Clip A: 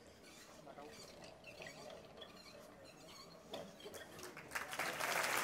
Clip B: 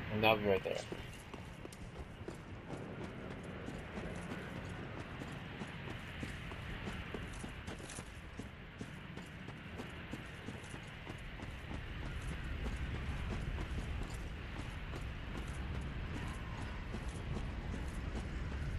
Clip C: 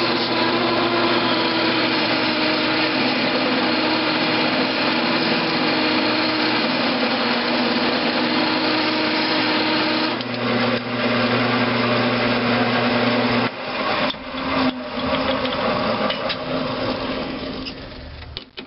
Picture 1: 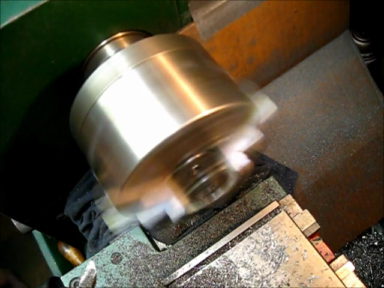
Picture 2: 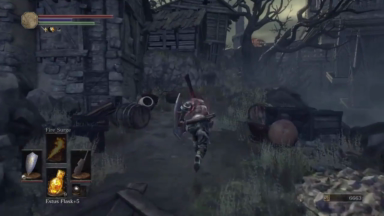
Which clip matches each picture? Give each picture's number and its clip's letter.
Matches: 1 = C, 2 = B